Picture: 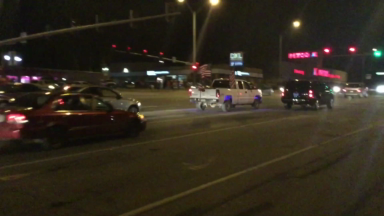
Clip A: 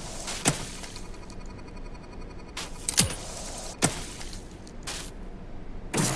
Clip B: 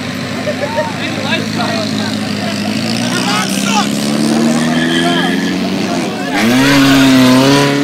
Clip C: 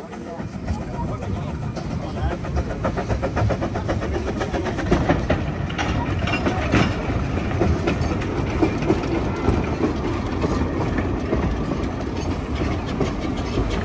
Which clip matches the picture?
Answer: B